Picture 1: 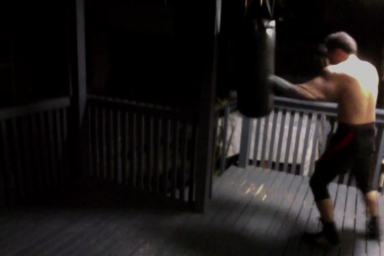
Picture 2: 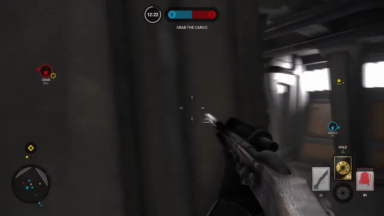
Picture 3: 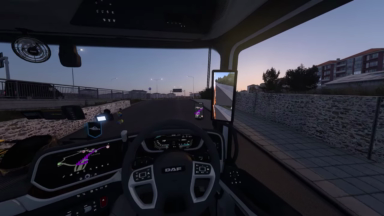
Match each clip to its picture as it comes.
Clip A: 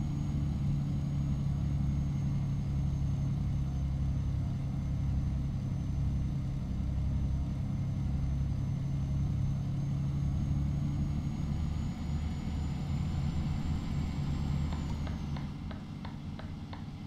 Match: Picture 3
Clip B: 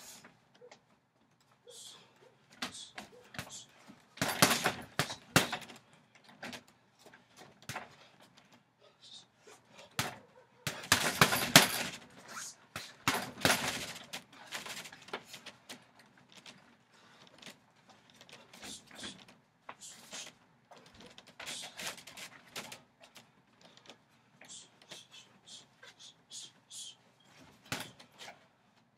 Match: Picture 1